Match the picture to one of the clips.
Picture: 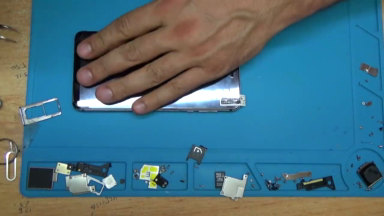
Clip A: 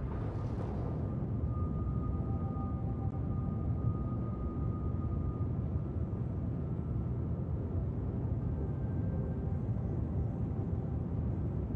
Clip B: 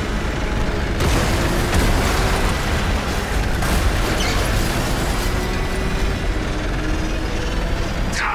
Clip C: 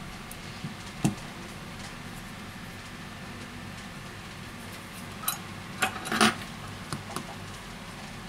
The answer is C